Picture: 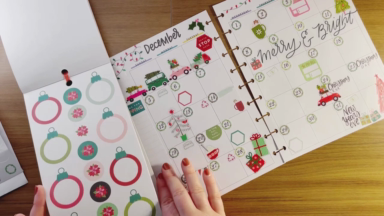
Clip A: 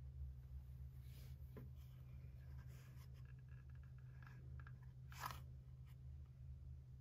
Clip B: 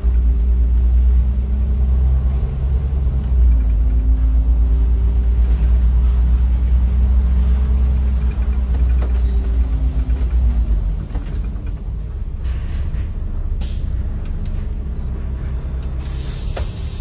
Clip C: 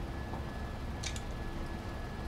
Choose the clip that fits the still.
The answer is A